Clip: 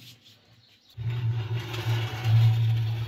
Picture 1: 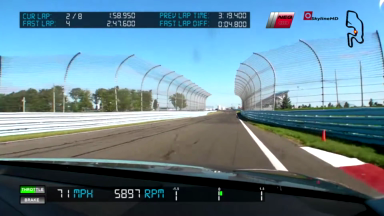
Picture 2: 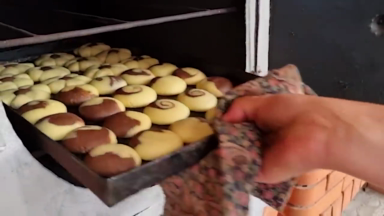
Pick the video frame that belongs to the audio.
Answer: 2